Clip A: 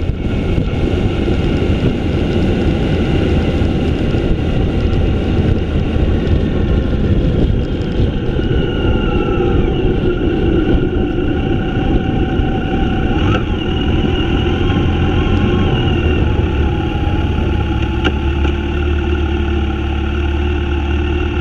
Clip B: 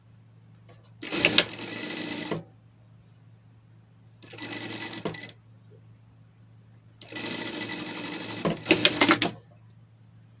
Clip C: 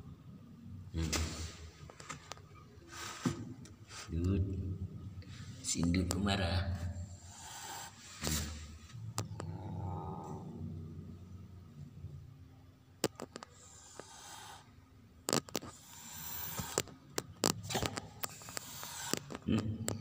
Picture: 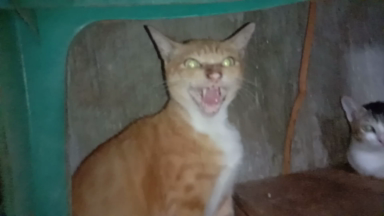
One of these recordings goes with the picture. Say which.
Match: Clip C